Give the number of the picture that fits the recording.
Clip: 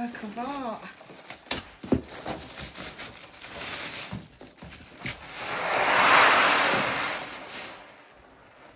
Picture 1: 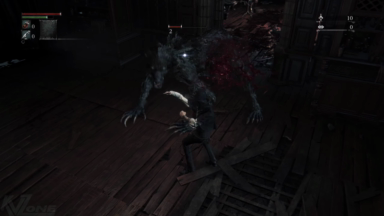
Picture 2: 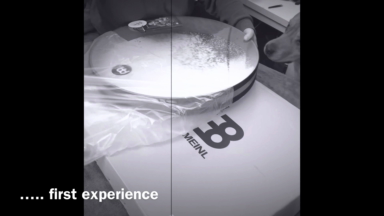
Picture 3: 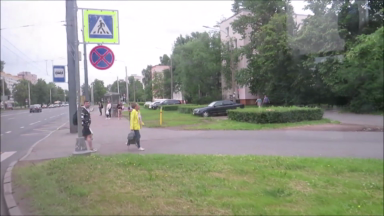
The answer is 2